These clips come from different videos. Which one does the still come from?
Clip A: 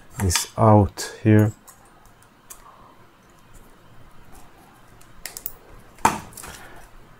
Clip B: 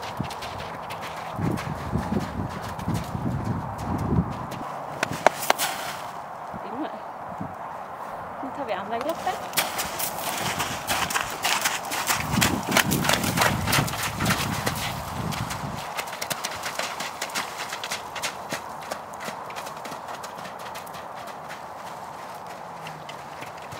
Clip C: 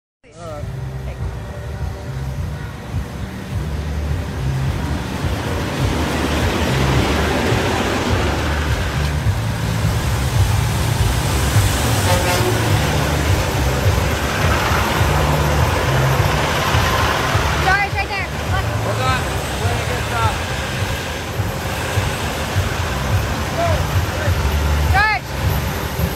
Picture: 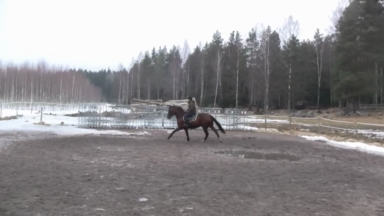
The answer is B